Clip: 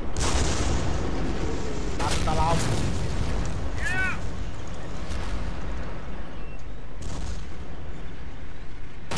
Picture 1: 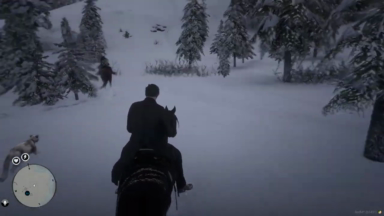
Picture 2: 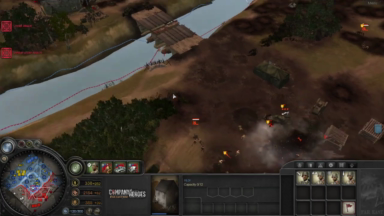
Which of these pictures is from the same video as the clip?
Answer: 2